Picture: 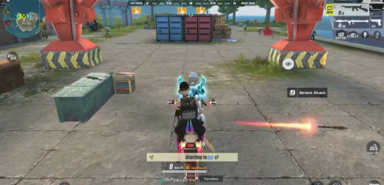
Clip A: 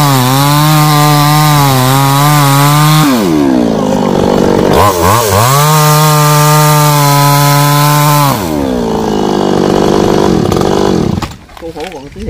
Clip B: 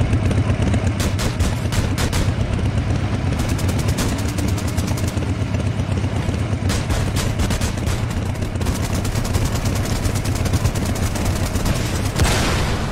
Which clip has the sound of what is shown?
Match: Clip B